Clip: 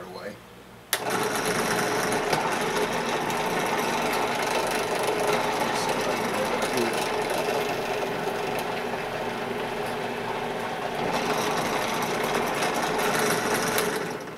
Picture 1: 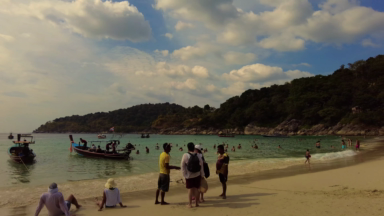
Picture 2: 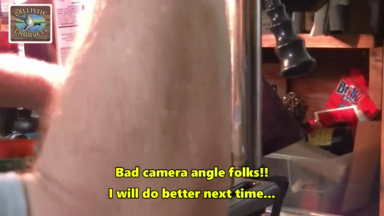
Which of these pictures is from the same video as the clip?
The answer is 2